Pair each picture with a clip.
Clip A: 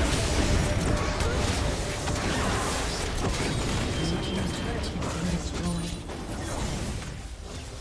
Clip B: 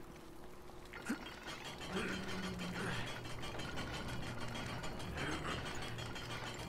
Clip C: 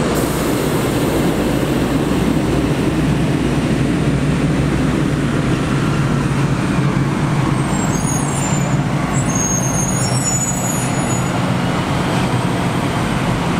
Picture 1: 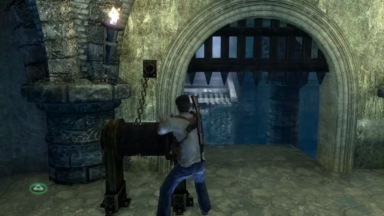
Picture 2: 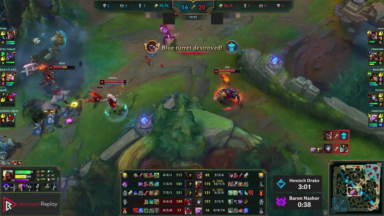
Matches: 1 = B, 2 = A